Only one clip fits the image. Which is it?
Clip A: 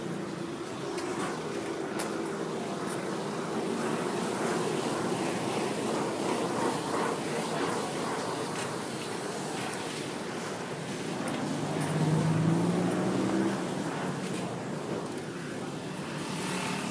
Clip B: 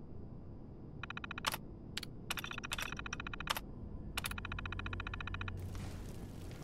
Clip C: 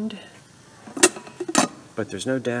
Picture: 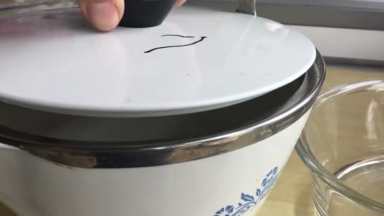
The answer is C